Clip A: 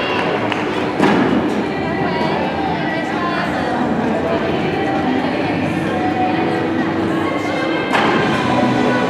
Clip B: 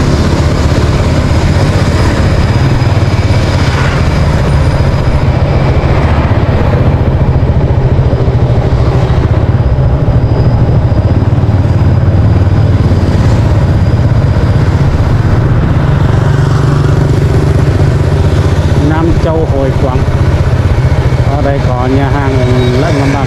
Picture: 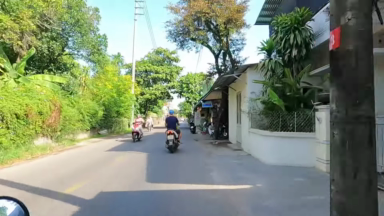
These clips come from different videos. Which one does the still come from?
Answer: B